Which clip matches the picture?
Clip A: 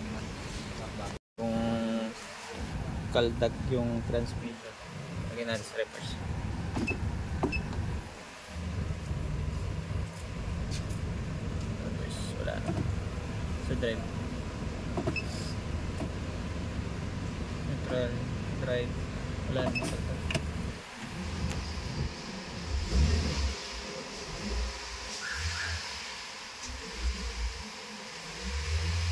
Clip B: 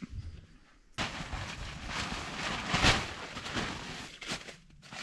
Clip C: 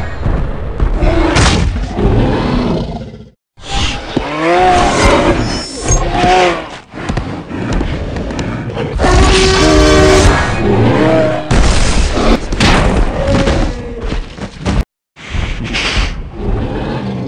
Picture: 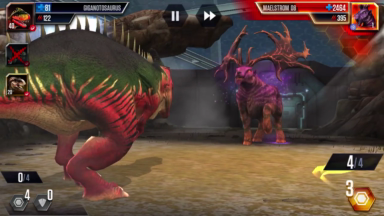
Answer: C